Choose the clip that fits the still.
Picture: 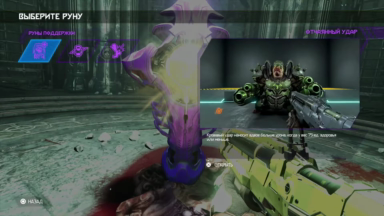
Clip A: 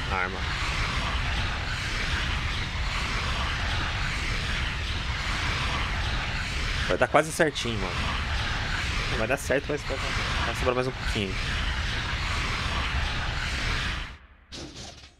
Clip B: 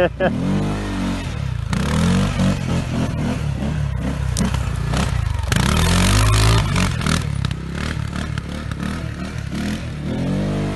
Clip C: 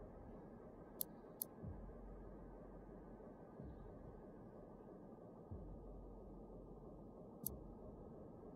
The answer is C